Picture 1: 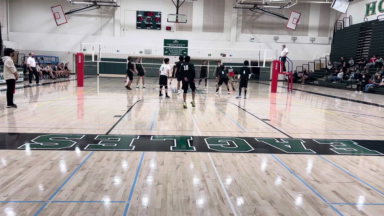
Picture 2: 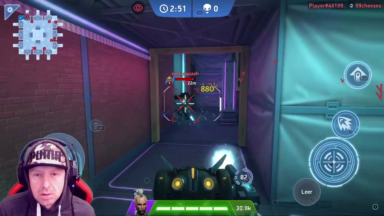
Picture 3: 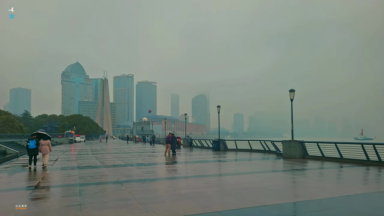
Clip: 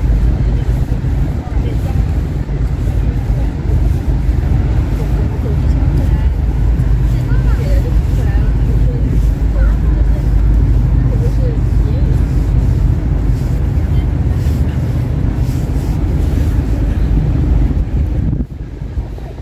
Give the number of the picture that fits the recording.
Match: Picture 3